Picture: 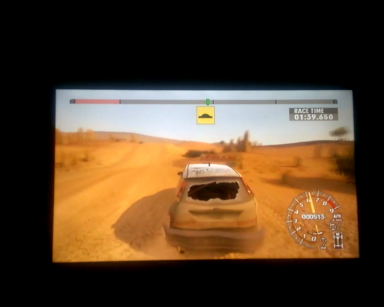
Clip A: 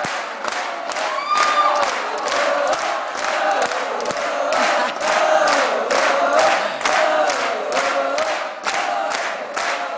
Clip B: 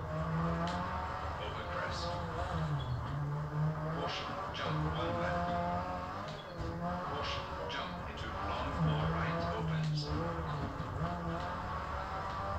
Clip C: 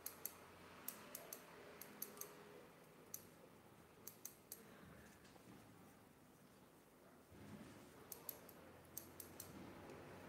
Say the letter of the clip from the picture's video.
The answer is B